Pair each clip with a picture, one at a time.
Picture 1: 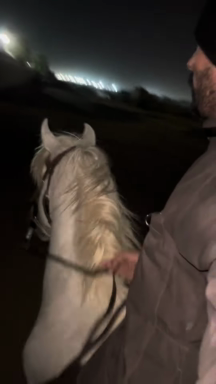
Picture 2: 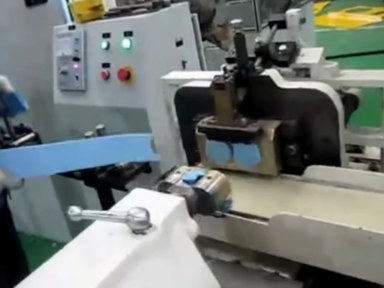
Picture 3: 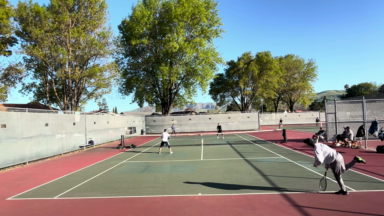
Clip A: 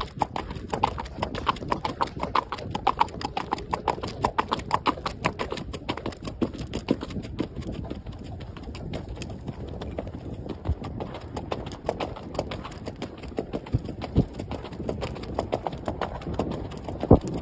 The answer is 1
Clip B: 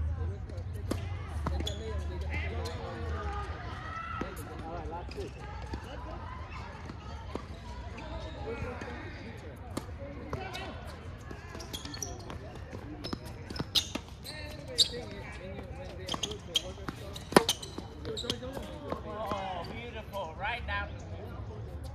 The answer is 3